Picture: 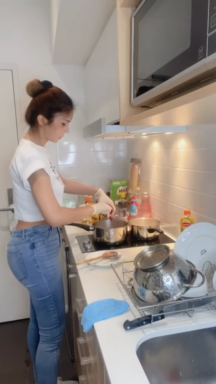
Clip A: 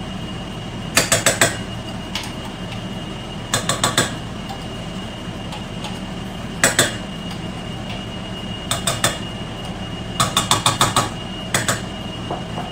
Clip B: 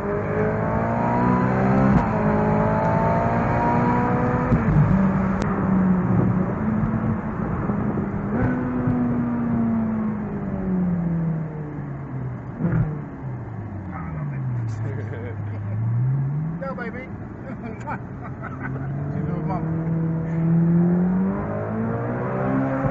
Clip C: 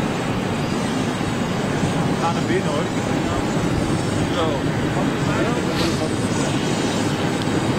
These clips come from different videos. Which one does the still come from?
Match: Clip A